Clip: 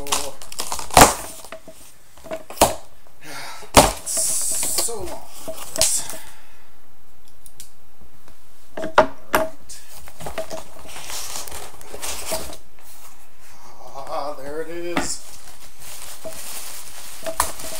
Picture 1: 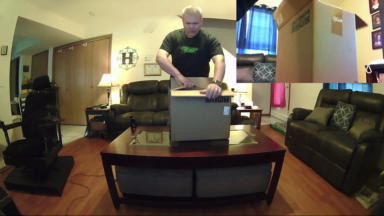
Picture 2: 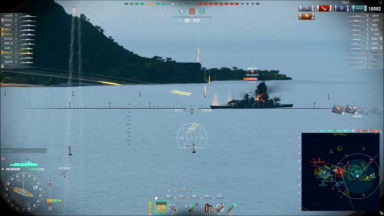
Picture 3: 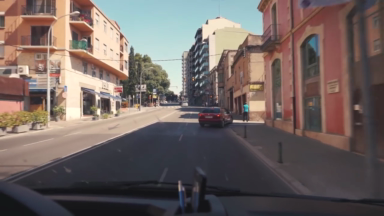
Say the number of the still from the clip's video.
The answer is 1